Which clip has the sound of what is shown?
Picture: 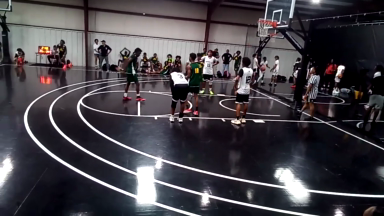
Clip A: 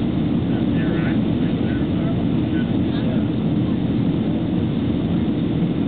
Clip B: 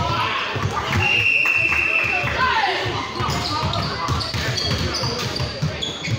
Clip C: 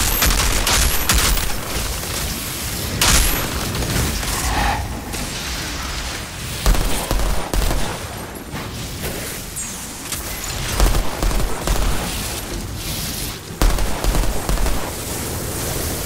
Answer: B